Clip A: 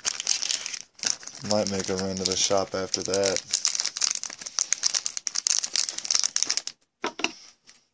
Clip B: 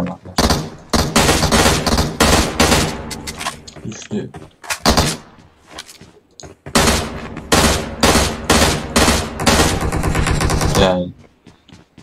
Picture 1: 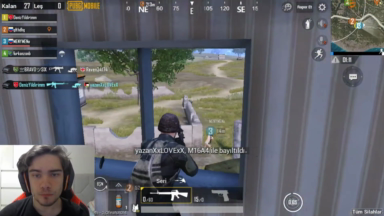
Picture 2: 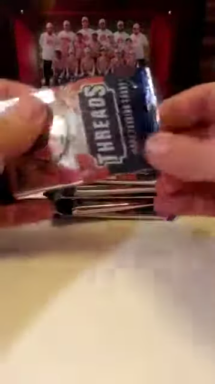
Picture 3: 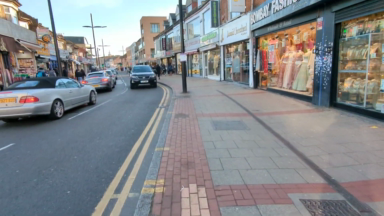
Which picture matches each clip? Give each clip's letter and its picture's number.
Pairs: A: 2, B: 1